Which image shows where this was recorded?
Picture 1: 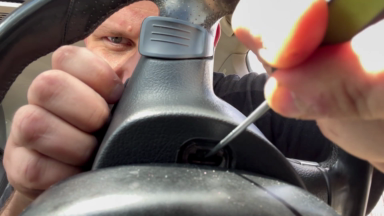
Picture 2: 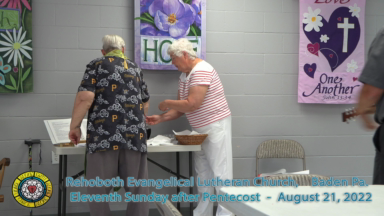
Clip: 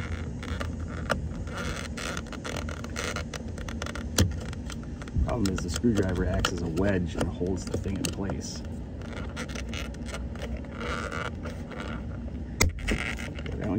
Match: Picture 1